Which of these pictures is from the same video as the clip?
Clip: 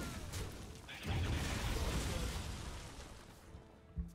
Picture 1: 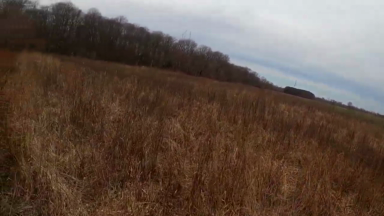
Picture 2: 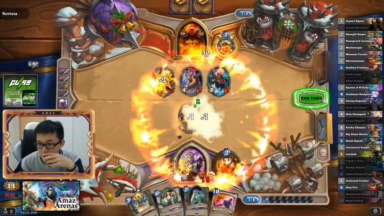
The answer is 2